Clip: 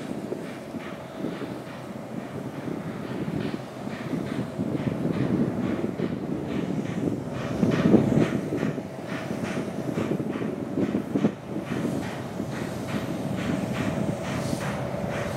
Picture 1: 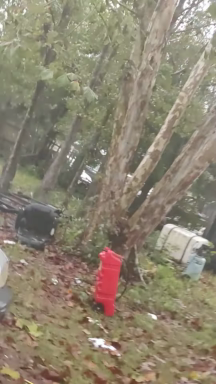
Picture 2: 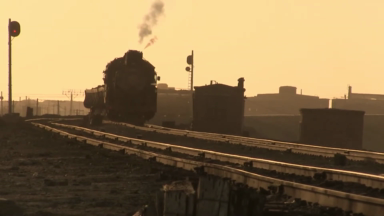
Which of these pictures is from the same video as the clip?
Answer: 2